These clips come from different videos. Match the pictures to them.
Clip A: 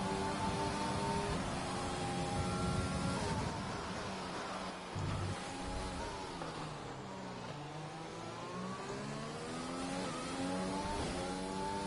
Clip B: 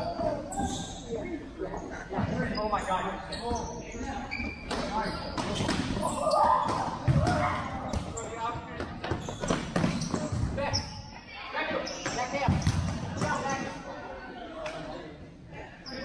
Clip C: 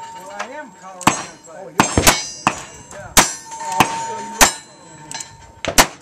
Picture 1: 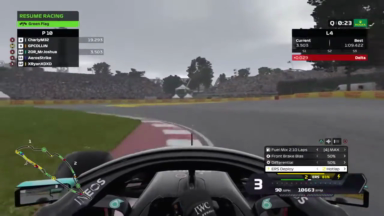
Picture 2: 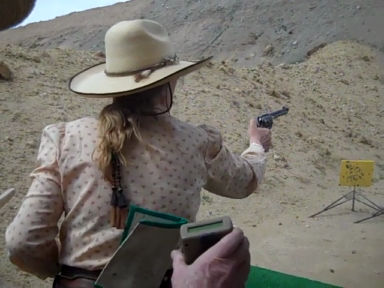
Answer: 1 A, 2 C